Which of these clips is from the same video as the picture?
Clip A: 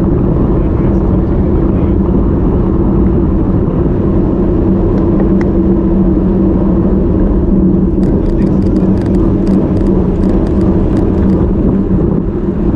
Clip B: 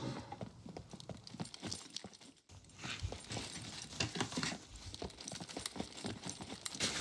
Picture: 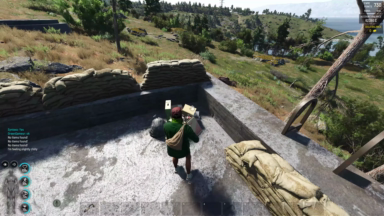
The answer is B